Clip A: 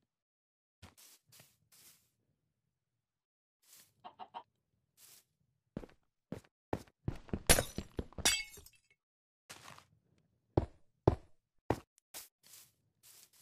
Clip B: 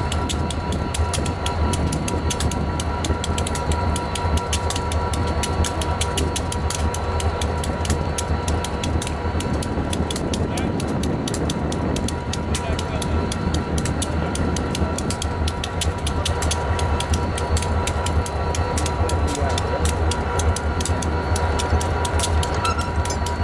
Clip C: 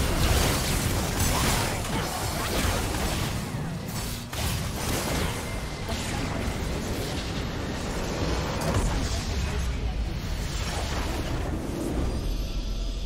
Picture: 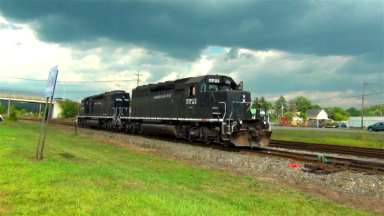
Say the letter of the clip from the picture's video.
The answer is B